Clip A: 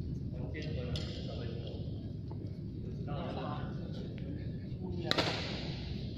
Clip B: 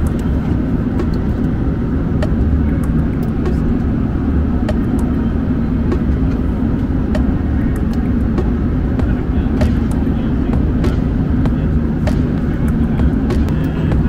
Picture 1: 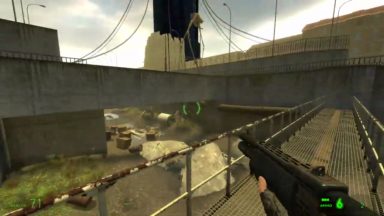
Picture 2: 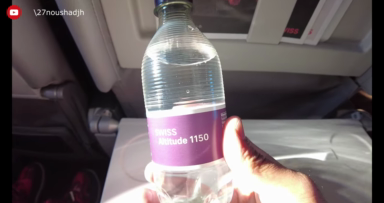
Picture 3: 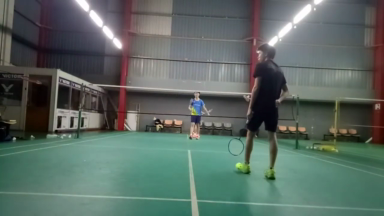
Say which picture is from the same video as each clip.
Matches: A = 3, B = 2